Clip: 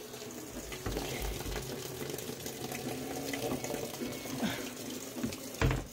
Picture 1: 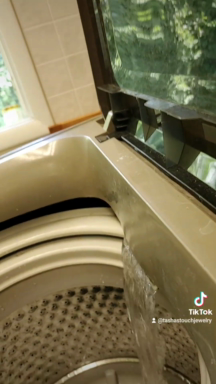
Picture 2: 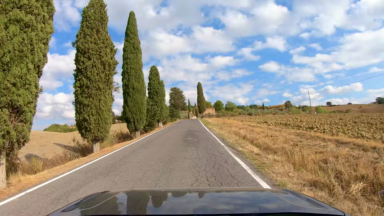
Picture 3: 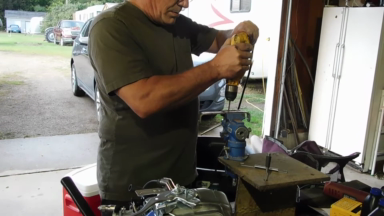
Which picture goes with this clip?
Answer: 1